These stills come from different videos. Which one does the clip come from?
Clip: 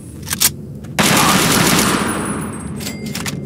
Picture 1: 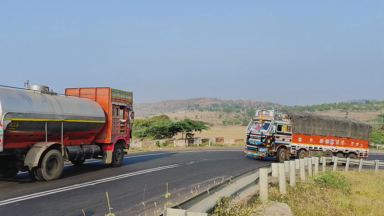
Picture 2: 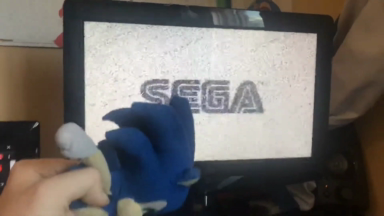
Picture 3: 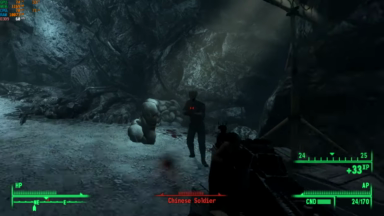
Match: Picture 3